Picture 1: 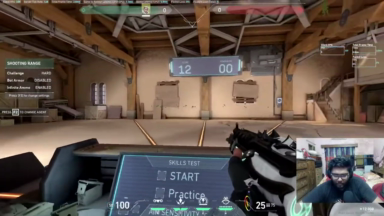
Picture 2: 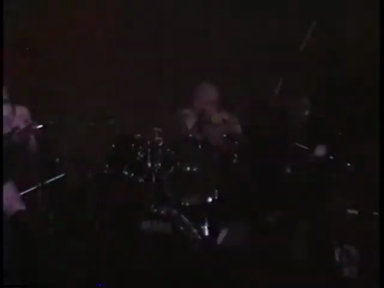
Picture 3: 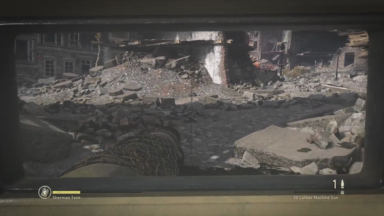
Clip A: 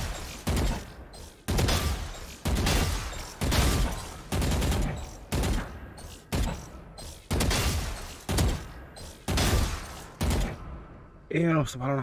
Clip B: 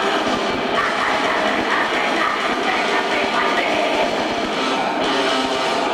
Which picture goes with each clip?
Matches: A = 1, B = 2